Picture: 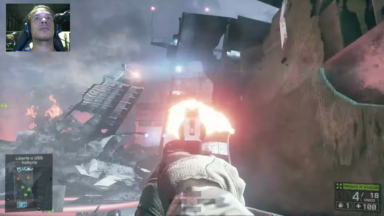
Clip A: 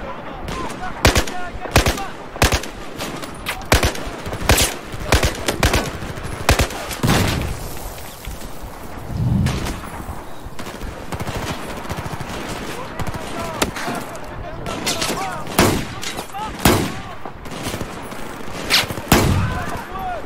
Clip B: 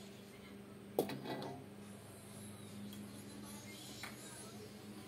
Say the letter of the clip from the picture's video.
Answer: A